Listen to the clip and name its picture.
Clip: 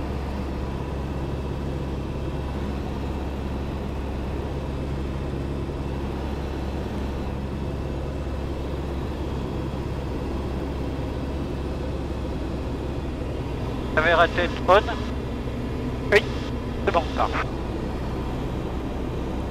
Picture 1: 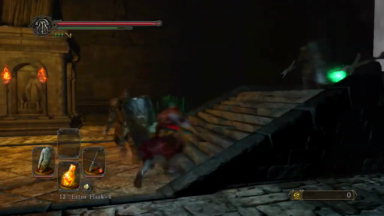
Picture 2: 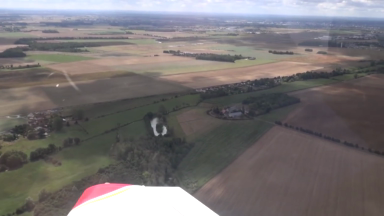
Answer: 2